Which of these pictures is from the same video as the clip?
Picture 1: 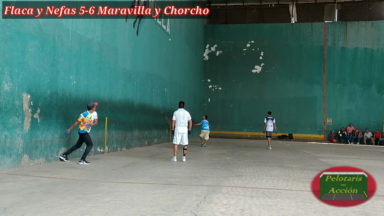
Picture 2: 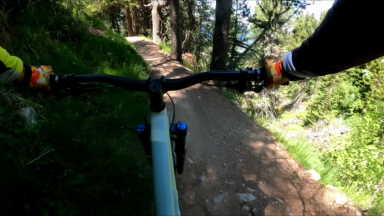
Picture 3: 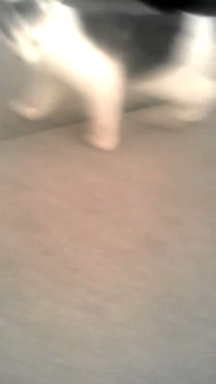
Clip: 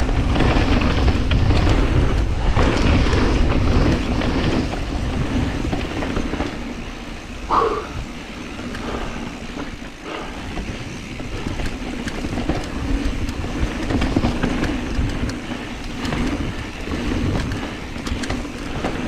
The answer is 2